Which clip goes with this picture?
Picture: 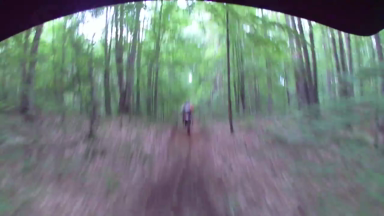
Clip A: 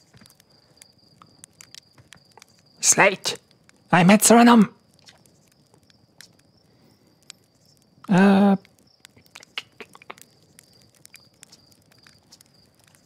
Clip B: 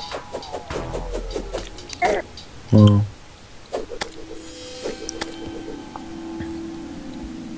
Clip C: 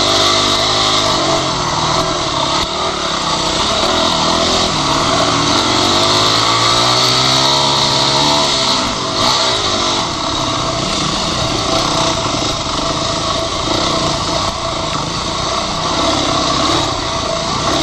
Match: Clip C